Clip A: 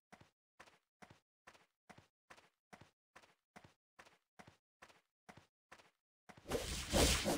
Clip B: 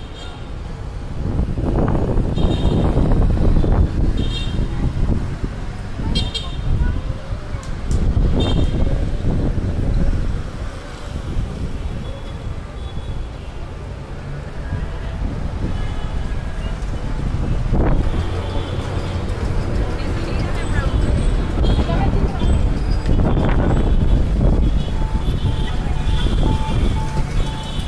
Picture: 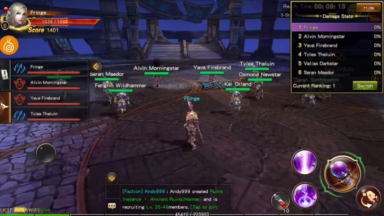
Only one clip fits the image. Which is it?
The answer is A